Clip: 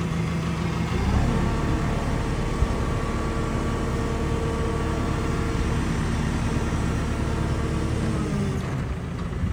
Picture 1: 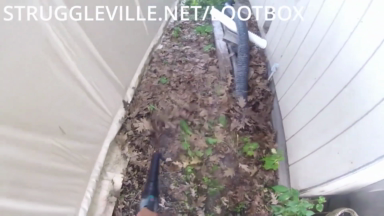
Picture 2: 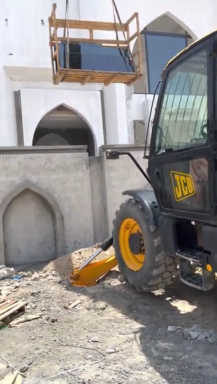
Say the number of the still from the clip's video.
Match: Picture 2